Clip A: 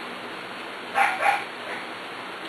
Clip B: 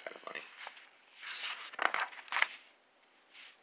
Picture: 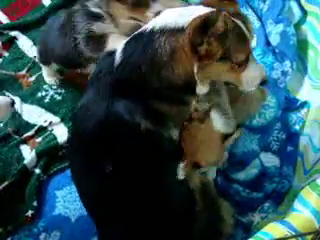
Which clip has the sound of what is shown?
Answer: A